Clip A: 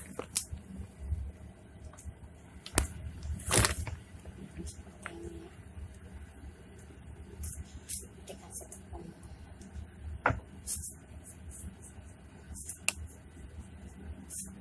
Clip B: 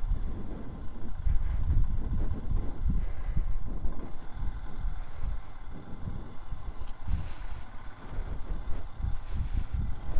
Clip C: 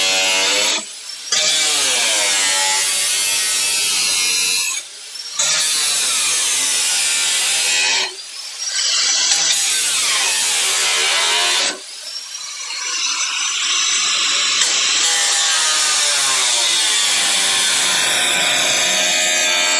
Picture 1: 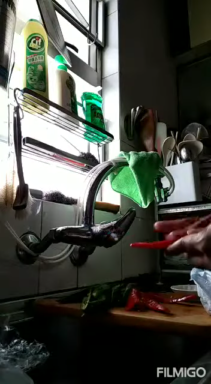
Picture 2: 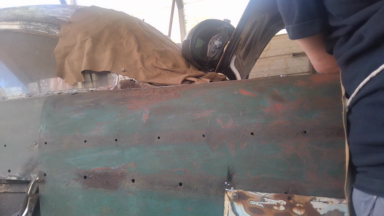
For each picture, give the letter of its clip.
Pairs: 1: A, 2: C